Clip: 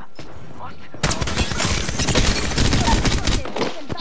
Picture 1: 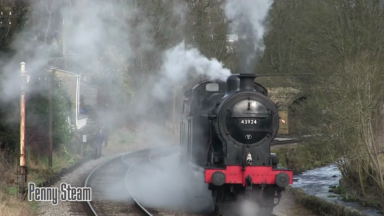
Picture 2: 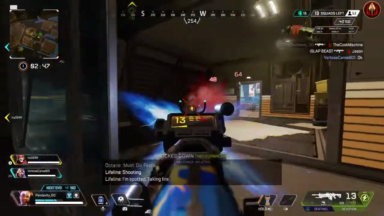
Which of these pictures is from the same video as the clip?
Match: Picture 2